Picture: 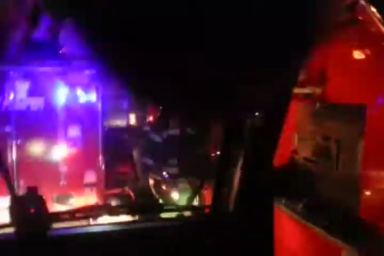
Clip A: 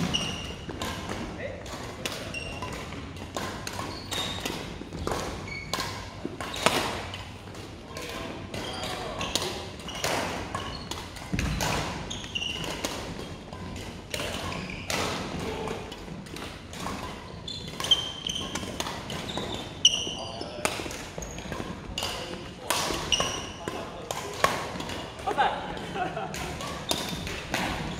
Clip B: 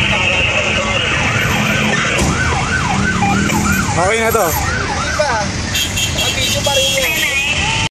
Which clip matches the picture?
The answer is B